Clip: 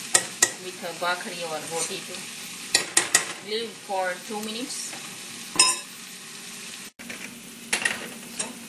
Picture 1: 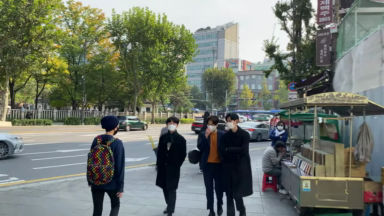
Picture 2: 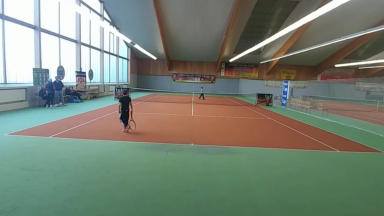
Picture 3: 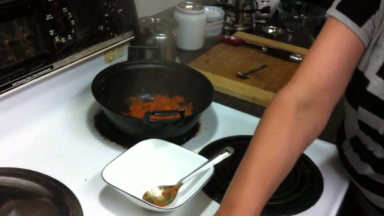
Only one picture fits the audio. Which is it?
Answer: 3